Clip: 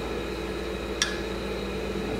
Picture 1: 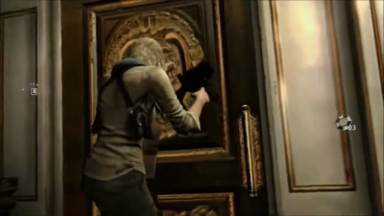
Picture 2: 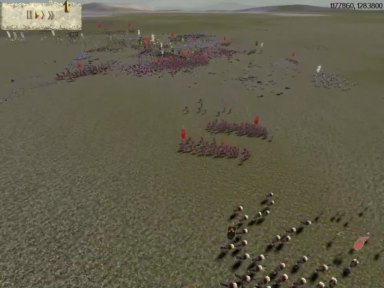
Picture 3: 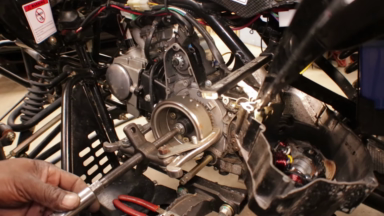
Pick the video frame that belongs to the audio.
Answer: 3